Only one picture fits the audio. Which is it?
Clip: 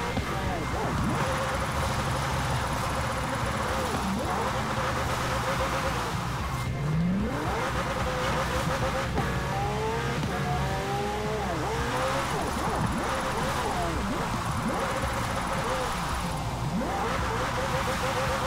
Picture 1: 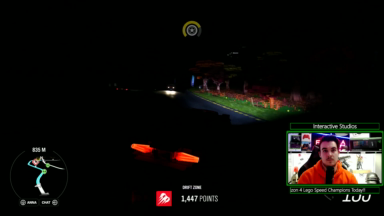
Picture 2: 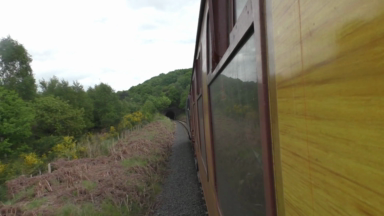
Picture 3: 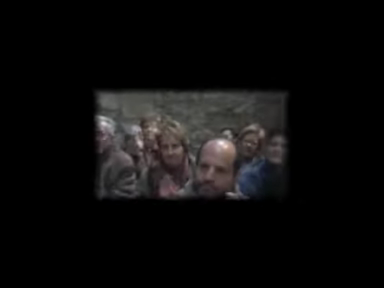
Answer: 1